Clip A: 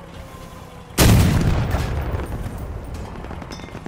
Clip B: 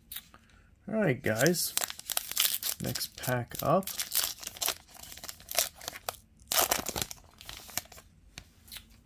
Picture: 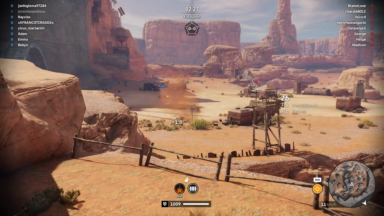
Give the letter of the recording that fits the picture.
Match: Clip A